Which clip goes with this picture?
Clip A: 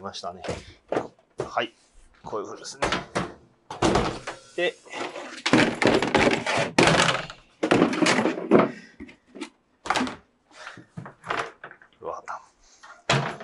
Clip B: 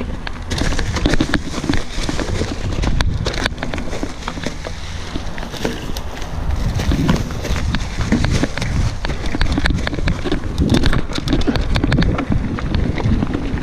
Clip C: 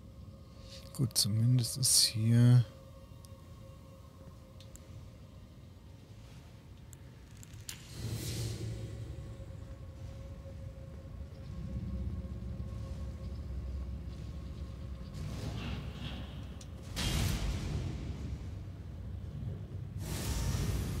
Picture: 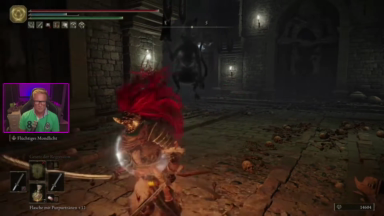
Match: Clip C